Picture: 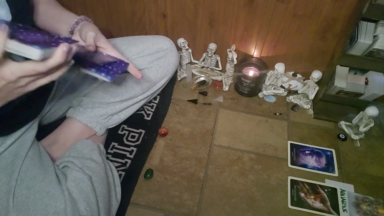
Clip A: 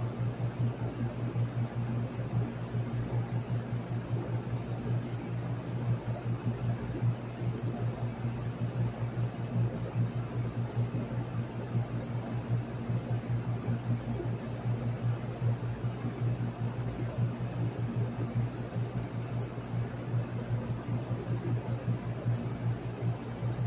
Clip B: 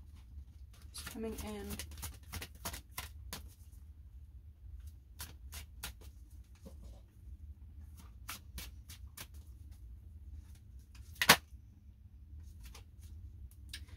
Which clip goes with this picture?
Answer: B